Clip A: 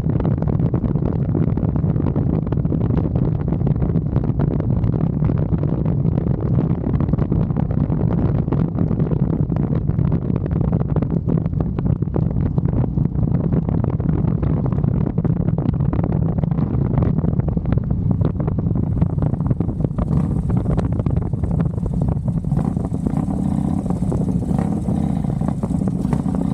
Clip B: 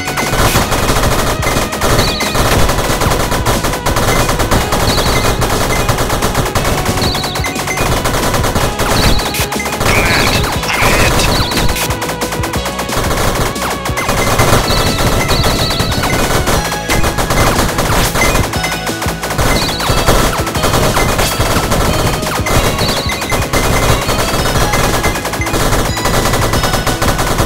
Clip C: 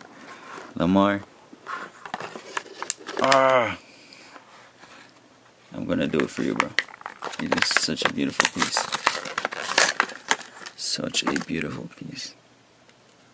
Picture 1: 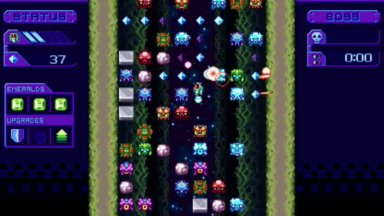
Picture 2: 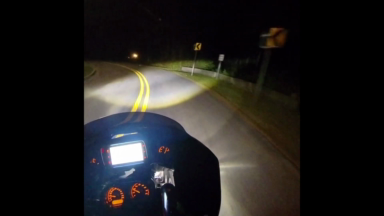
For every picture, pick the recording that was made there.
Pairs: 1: B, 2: A